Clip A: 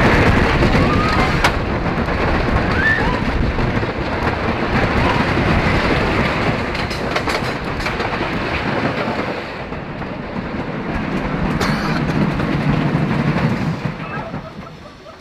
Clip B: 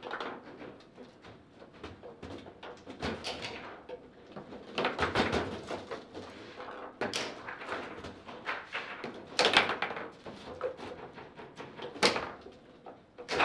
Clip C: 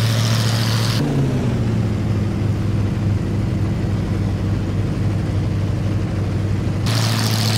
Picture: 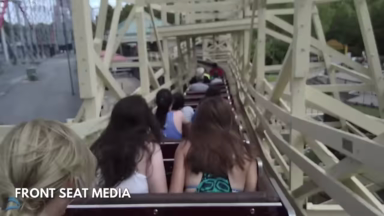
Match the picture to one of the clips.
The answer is A